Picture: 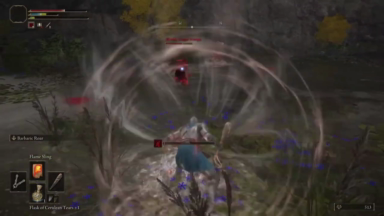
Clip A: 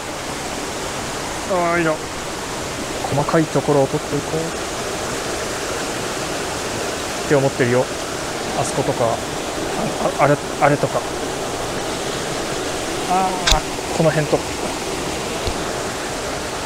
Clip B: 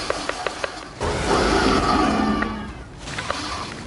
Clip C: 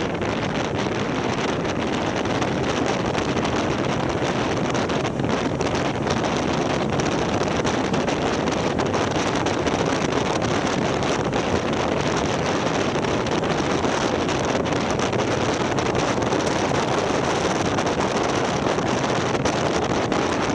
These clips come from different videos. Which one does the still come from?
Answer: B